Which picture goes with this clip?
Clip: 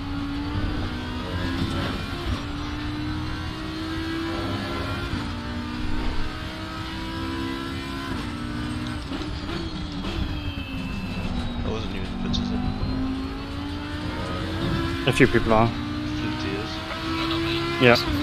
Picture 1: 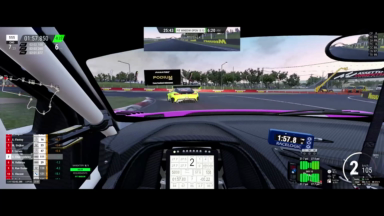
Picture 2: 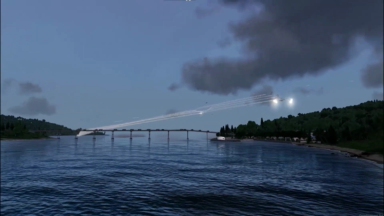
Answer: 1